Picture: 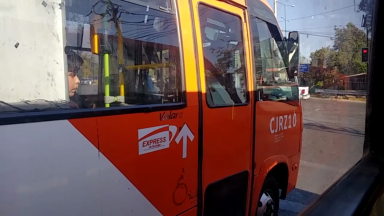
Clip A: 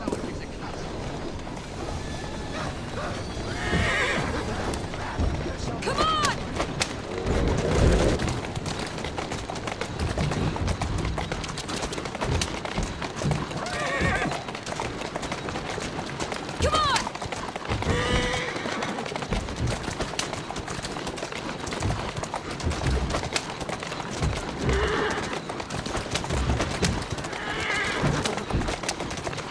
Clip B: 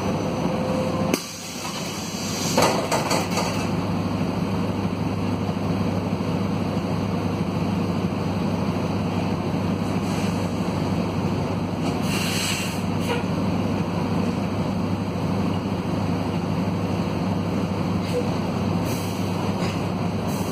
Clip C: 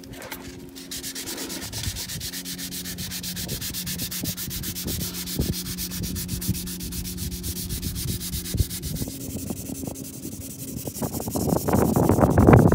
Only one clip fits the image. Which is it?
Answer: B